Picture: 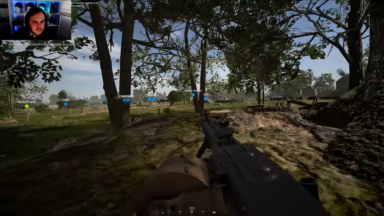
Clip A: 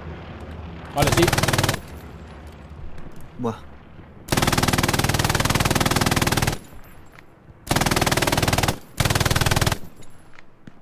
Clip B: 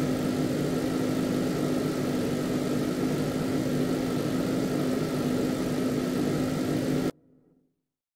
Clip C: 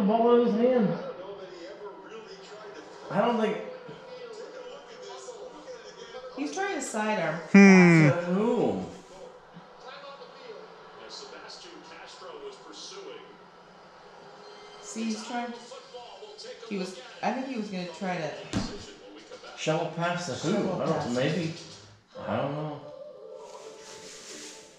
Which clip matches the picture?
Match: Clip A